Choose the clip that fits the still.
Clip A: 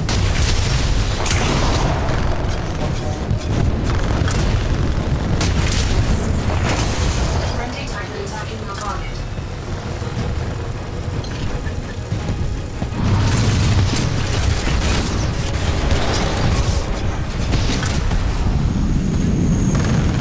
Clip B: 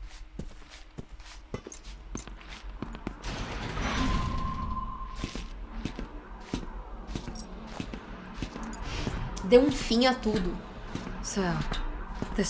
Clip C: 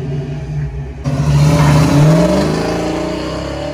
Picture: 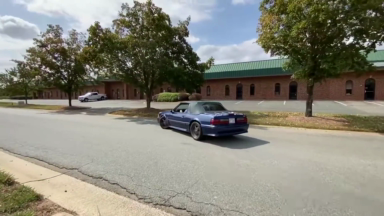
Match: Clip C